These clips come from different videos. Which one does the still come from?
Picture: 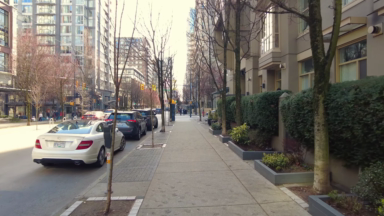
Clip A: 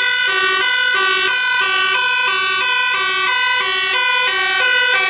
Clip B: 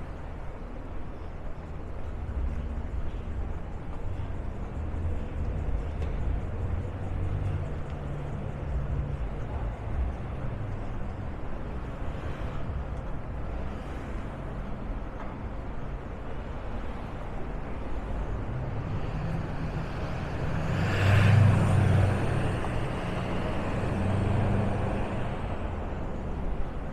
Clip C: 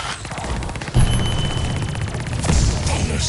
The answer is B